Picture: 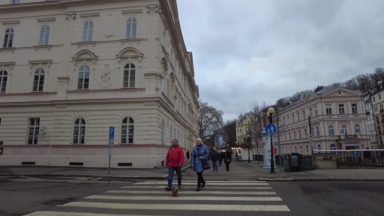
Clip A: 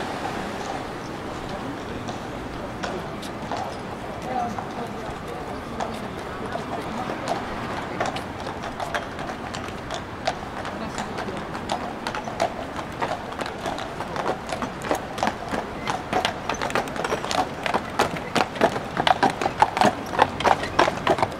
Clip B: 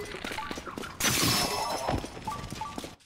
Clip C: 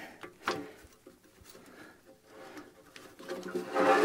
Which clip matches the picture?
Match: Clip A